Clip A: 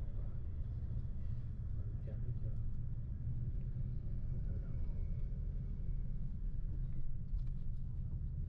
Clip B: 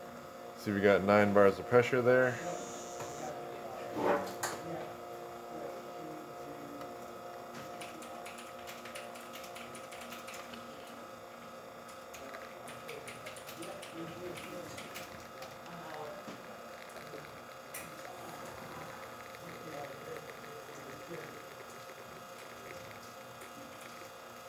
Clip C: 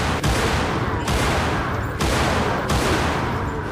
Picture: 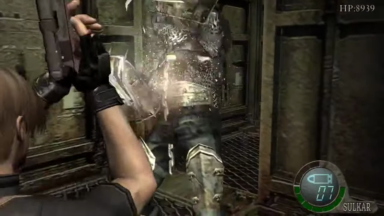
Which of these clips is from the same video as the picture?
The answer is C